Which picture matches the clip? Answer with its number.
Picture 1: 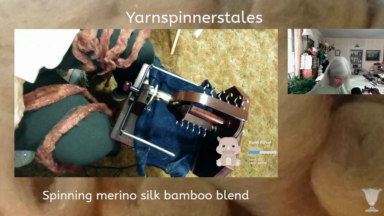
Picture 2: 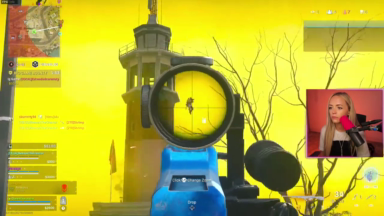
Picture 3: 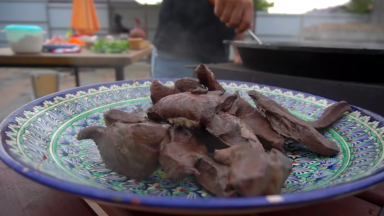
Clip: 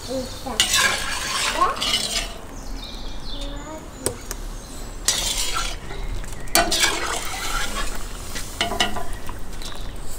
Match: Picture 3